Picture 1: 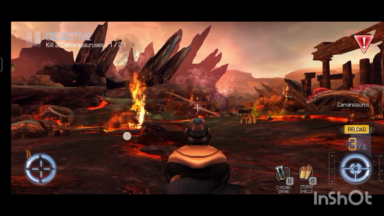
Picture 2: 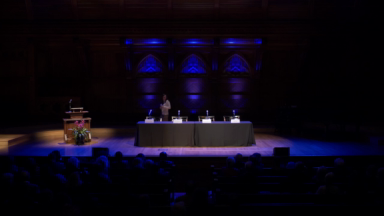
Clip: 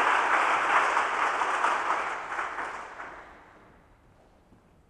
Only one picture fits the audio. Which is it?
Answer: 2